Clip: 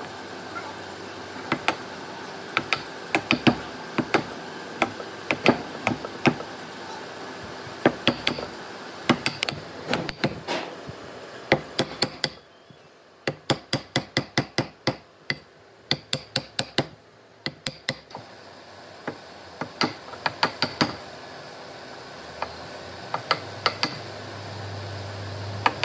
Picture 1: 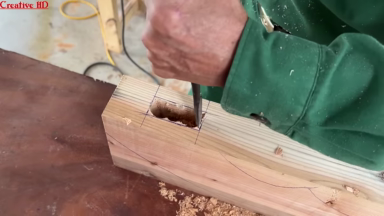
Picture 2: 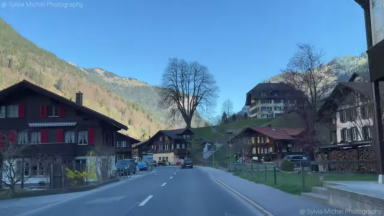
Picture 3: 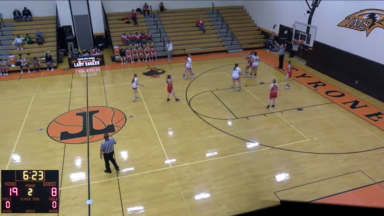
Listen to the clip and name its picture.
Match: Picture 1